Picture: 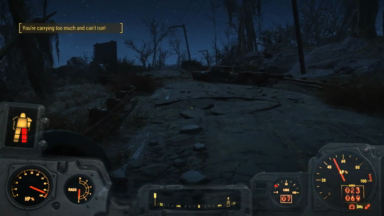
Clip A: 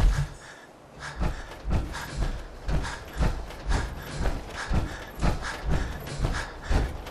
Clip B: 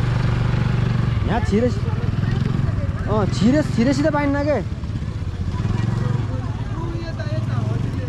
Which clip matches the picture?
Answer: A